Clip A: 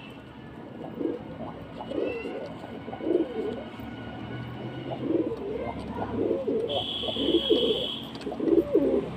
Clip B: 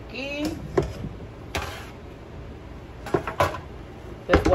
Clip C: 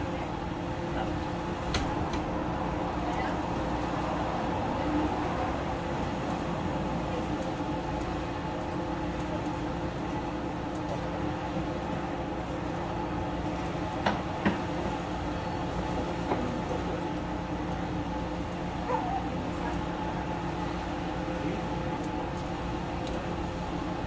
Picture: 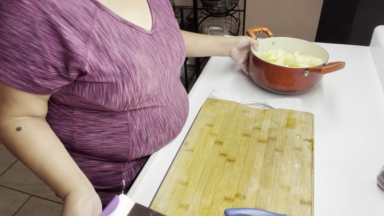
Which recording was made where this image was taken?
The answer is B